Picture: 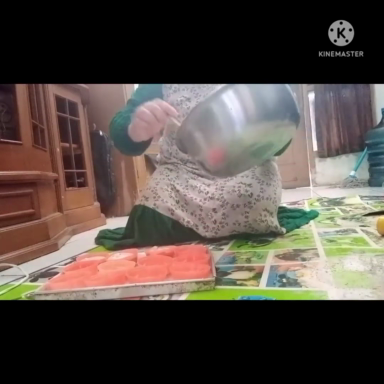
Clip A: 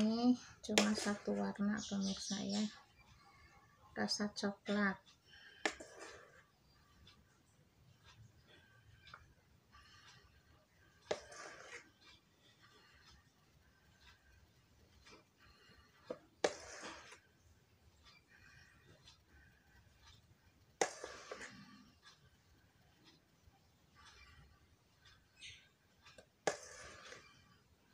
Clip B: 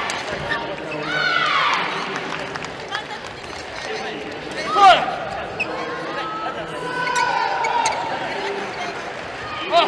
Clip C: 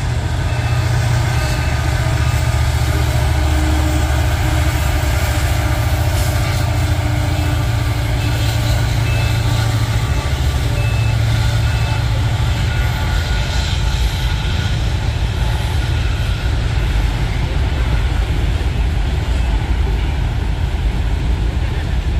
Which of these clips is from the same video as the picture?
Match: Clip A